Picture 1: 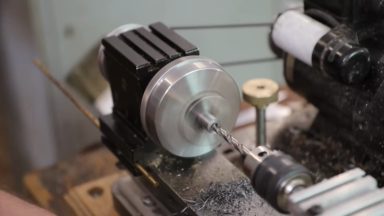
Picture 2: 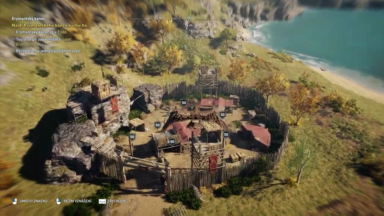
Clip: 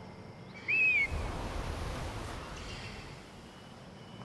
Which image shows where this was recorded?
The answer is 2